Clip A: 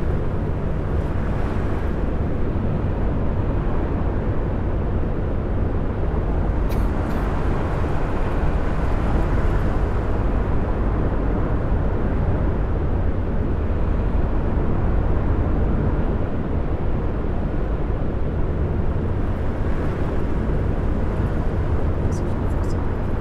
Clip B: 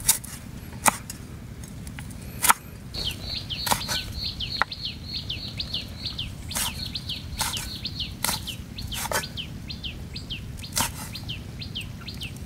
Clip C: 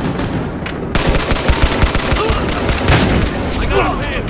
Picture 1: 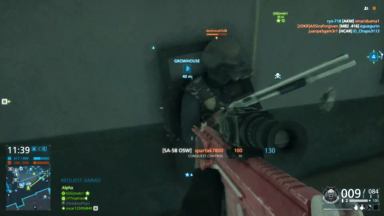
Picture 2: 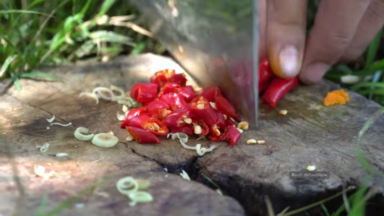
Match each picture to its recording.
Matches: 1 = C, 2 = B